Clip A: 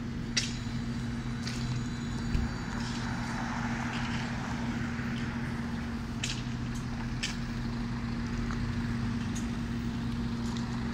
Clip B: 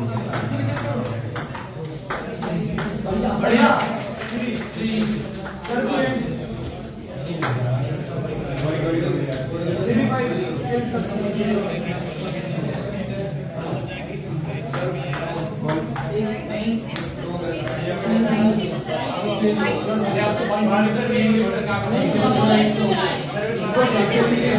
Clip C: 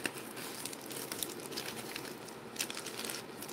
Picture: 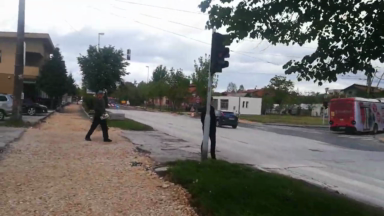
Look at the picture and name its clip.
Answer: A